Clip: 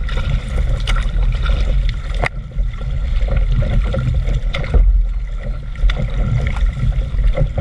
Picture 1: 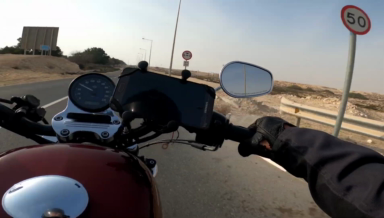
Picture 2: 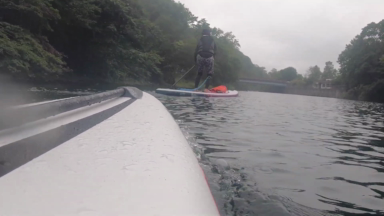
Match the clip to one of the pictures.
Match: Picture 2